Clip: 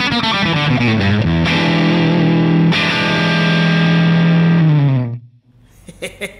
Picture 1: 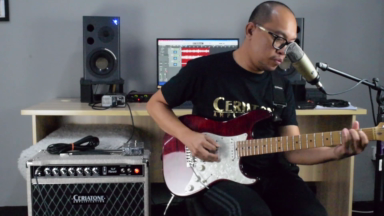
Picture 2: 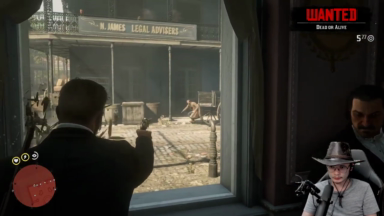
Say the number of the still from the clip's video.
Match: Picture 1